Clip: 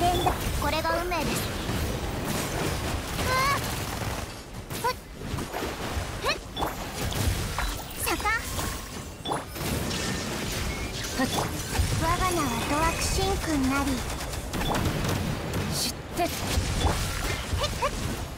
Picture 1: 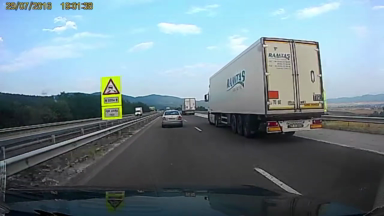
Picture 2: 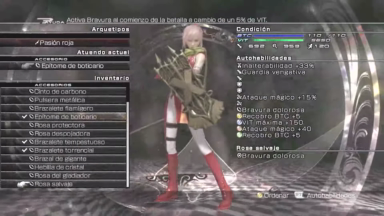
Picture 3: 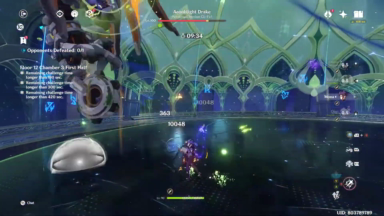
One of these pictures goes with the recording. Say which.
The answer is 3